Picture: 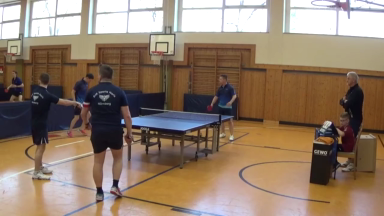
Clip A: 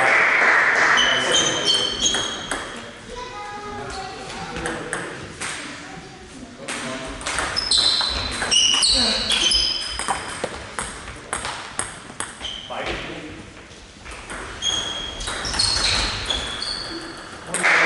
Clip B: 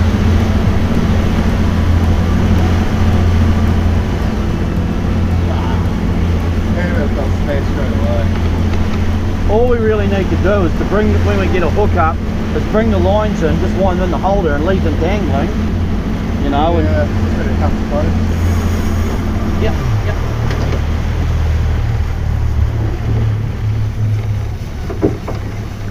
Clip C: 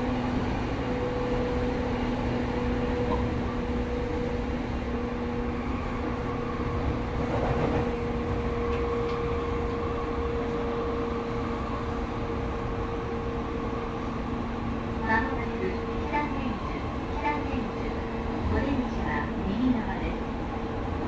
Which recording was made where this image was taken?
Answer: A